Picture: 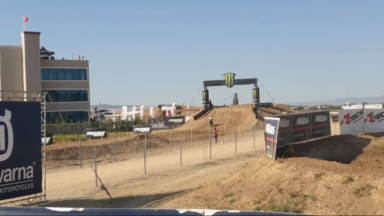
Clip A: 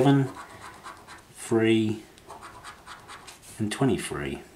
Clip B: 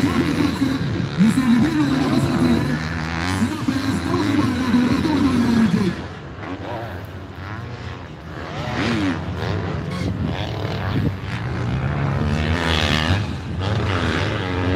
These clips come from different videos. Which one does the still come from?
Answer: B